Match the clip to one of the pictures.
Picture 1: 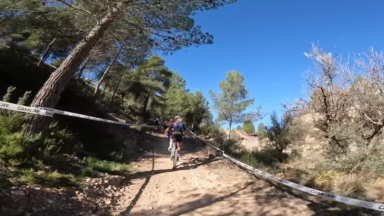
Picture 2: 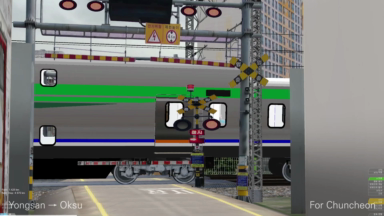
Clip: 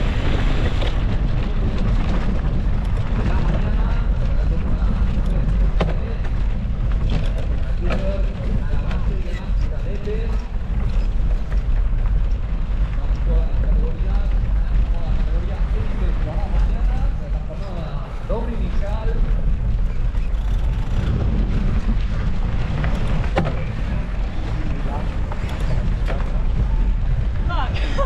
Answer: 1